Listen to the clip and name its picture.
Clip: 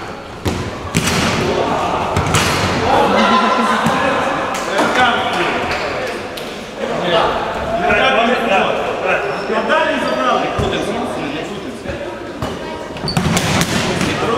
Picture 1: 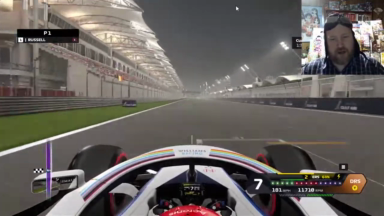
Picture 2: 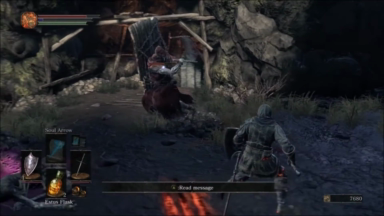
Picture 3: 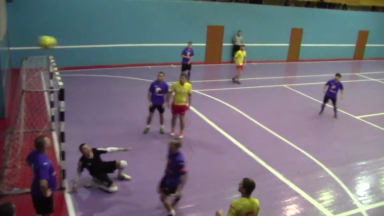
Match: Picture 3